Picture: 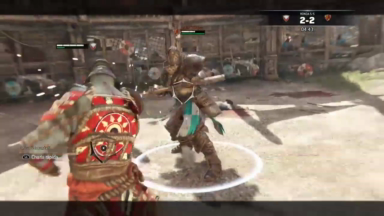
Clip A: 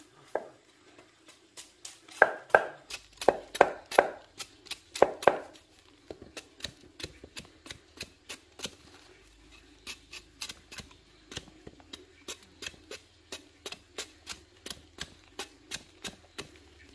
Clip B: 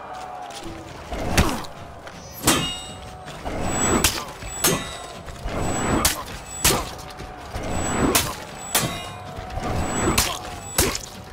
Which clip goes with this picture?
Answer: B